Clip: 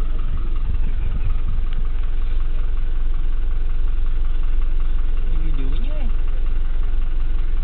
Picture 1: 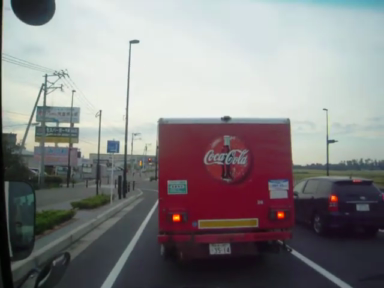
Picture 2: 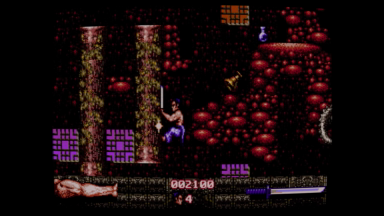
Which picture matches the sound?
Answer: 1